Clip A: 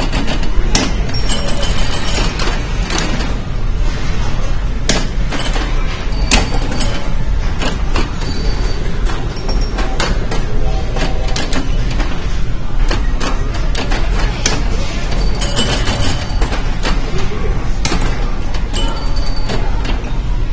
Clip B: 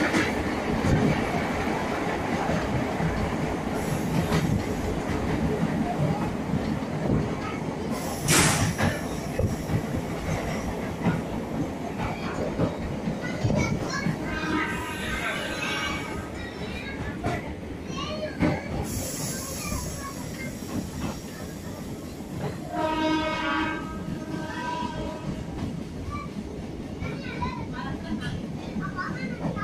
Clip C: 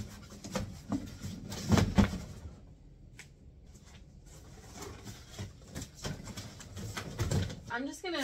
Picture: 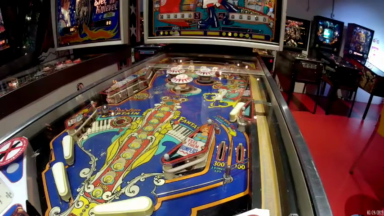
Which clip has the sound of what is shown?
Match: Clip A